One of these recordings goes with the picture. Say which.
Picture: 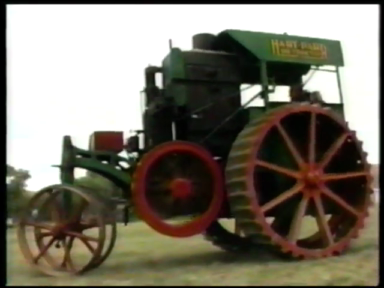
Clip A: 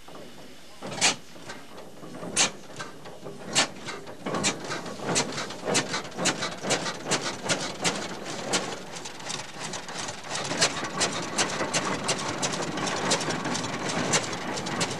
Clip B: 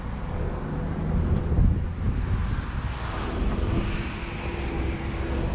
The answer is A